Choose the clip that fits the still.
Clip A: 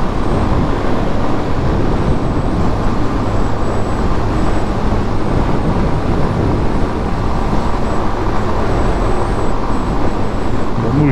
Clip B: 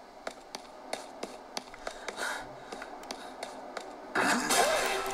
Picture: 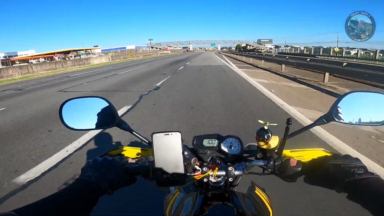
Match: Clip A